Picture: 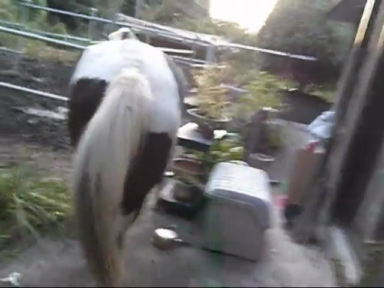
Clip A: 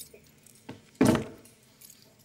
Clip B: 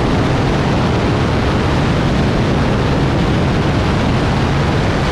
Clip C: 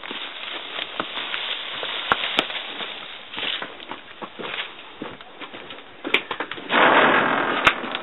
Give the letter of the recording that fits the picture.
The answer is C